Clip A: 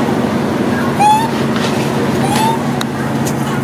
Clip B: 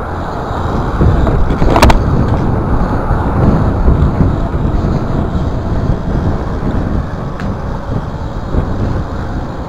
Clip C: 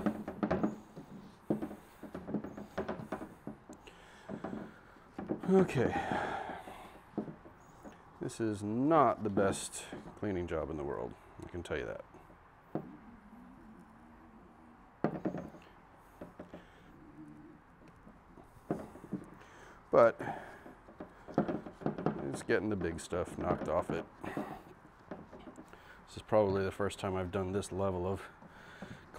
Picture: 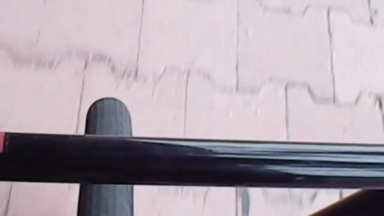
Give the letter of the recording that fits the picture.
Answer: B